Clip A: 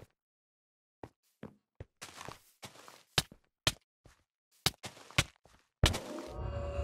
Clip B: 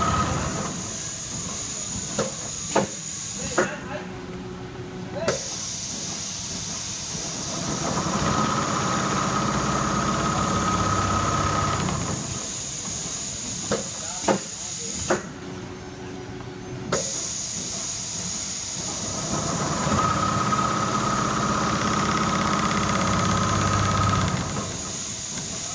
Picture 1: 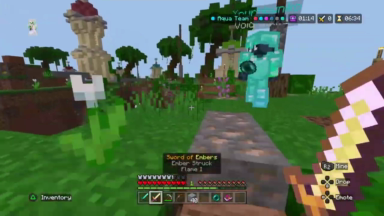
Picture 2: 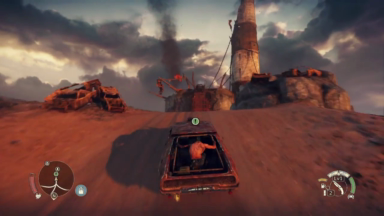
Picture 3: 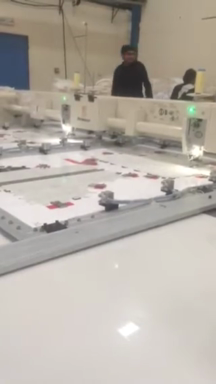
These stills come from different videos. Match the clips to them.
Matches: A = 1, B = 3